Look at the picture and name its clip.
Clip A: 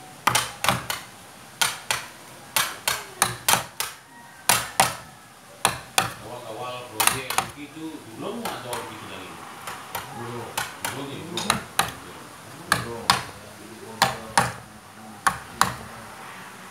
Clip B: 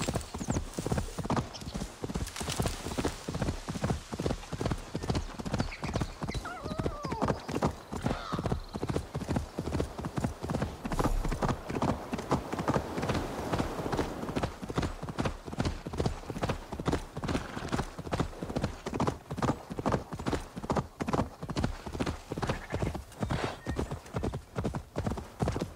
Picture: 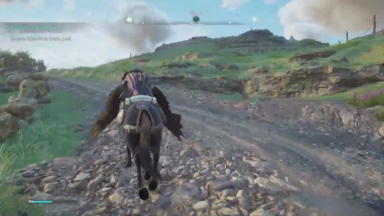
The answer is B